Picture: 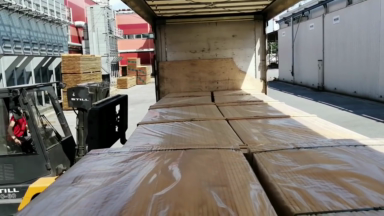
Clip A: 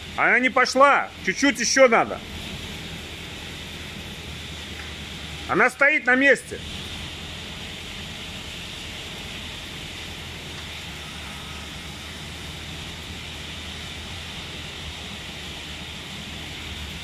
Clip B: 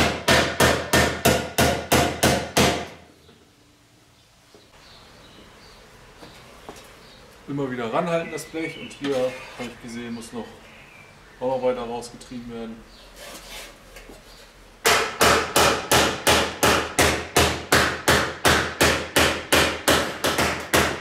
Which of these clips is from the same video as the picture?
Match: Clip A